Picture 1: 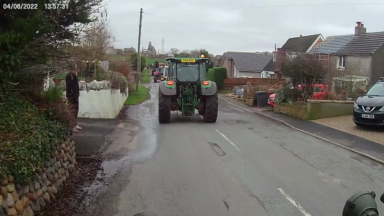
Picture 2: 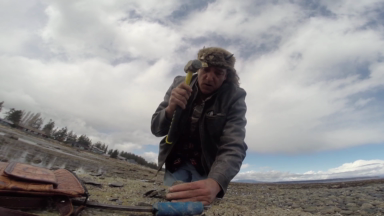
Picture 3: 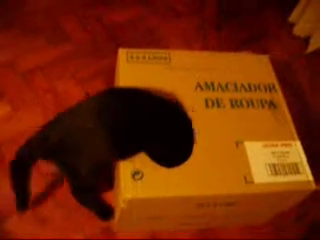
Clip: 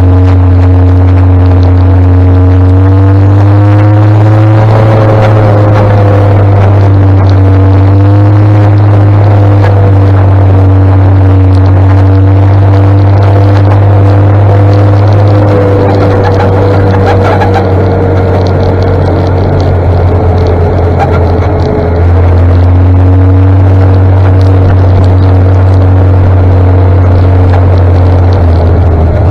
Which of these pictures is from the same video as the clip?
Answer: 1